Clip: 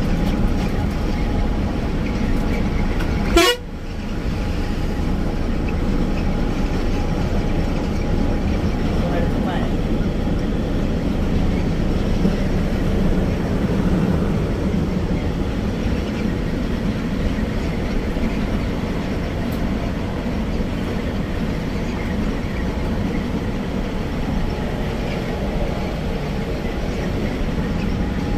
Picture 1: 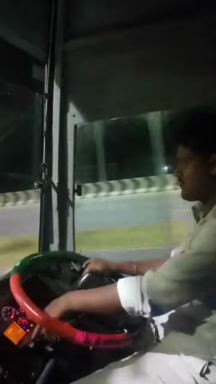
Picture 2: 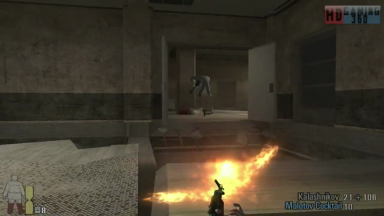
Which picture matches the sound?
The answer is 1